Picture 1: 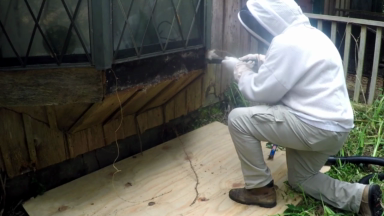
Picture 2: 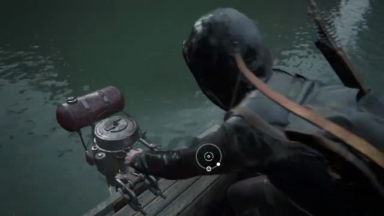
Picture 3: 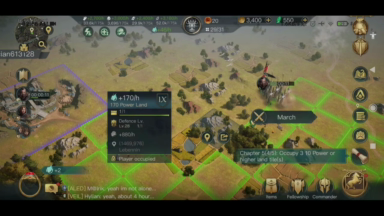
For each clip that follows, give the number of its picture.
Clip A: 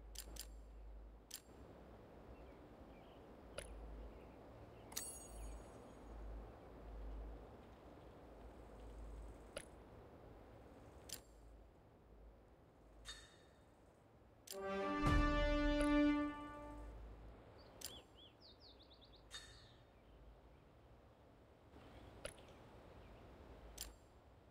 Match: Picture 3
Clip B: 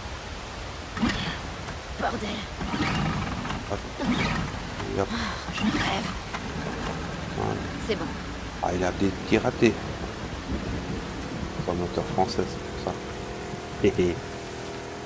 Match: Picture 2